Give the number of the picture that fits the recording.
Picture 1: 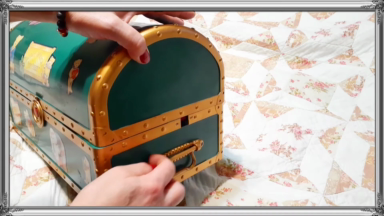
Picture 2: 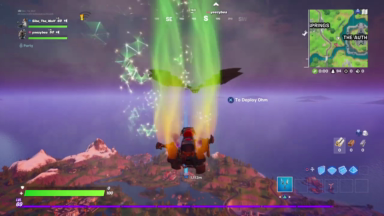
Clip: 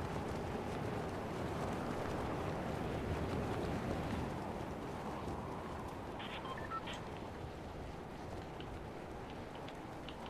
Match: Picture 2